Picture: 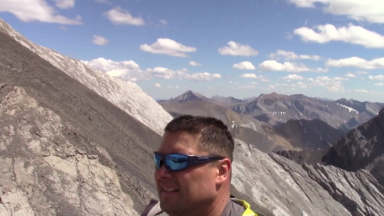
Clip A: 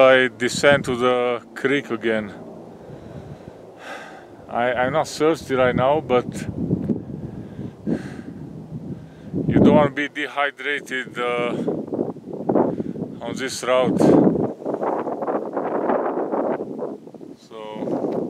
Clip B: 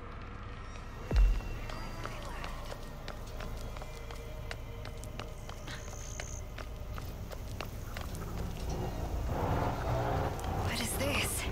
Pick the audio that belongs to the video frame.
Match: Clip A